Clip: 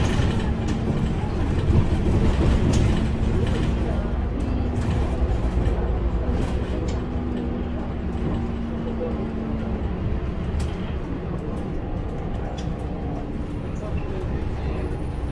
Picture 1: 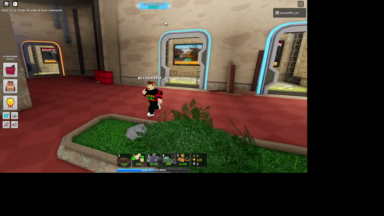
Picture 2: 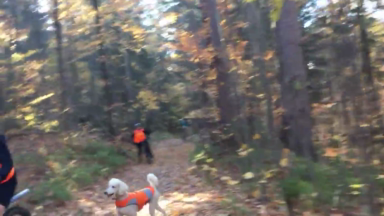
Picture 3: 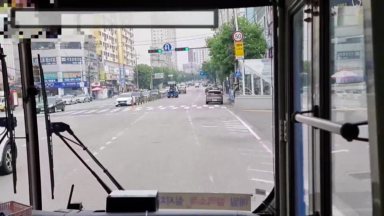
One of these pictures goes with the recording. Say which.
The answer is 3